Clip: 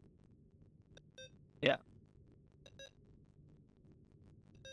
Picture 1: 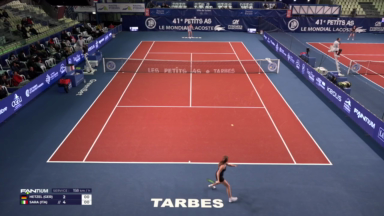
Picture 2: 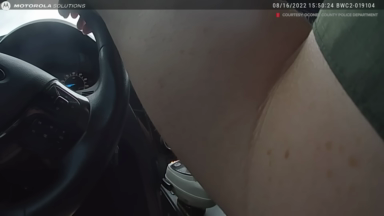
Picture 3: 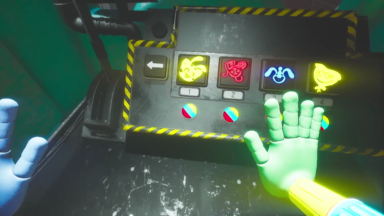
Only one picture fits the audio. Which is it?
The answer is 3